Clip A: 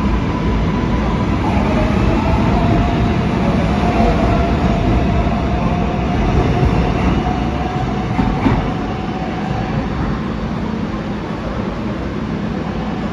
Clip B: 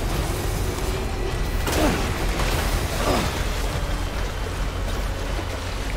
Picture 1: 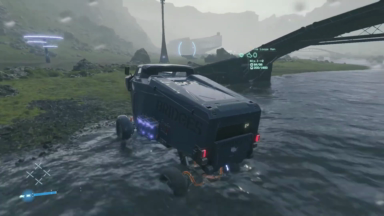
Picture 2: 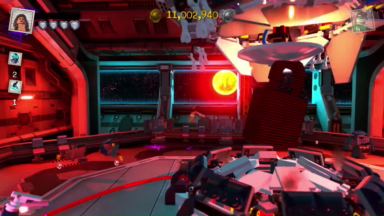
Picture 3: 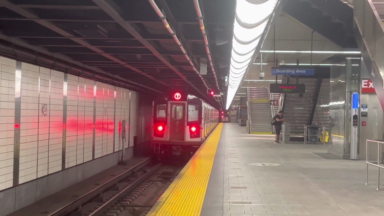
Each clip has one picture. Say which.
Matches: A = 3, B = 1